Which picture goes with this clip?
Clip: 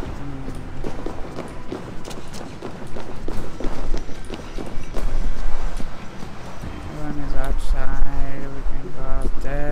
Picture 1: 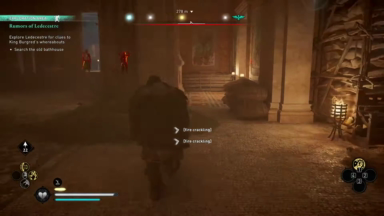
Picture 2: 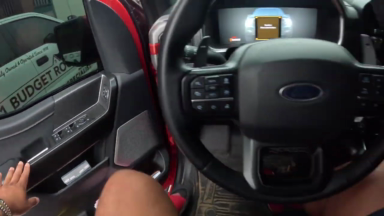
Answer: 1